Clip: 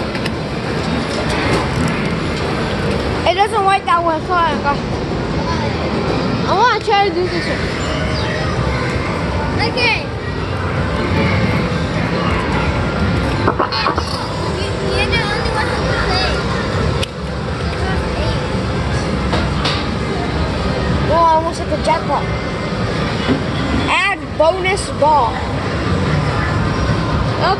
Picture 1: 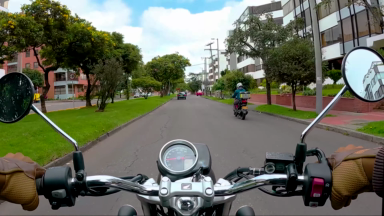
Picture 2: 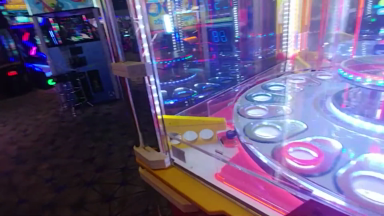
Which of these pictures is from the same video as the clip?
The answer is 2